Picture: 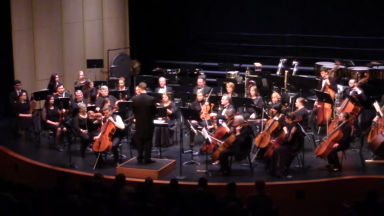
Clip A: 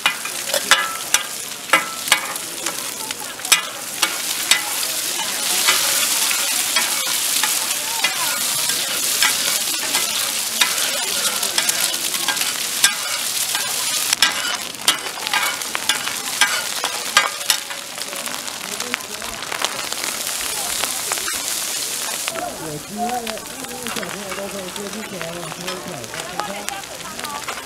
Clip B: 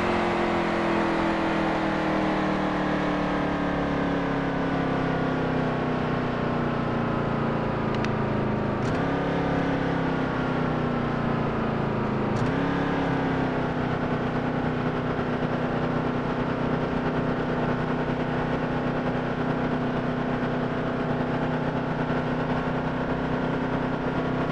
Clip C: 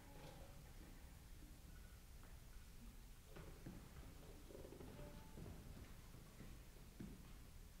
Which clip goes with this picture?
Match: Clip C